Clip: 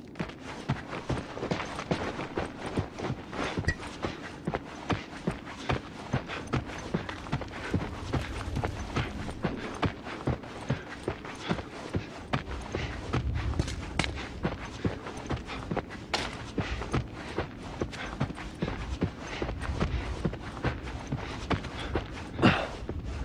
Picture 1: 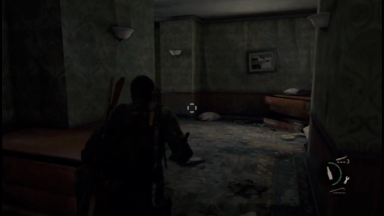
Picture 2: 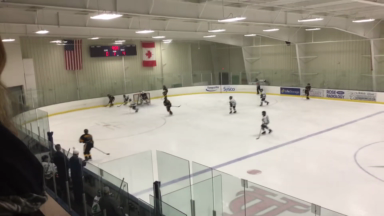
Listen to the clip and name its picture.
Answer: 1